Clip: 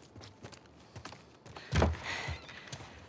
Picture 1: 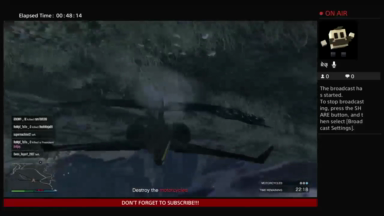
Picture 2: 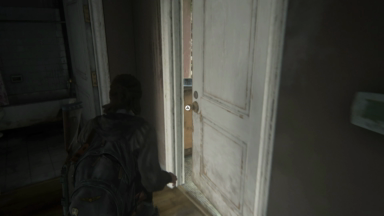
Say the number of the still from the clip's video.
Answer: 2